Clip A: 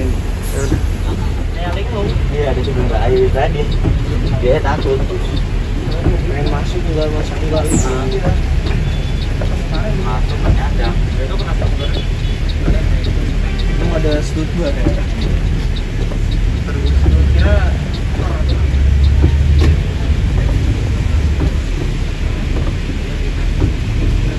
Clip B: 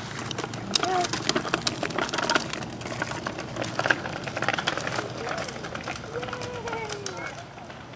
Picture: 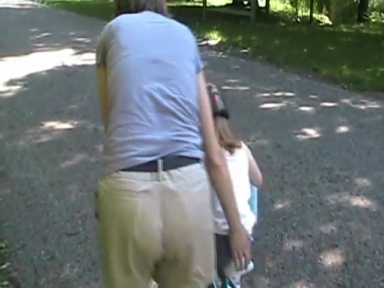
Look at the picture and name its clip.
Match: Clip B